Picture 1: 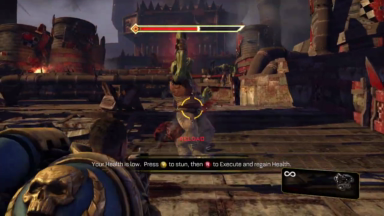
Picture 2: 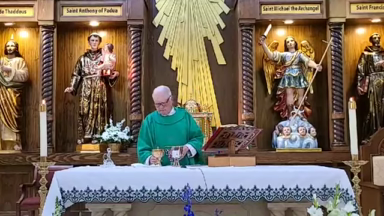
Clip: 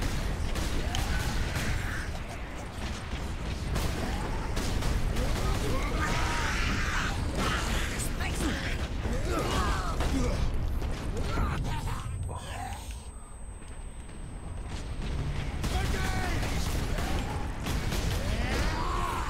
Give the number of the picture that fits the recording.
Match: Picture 1